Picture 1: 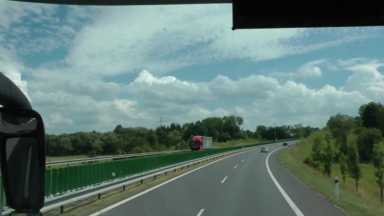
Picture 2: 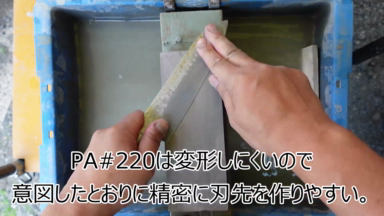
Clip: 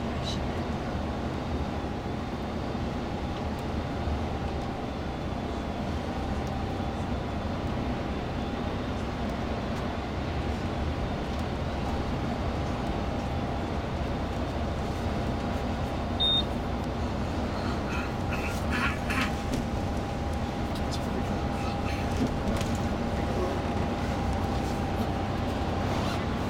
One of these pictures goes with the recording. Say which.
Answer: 1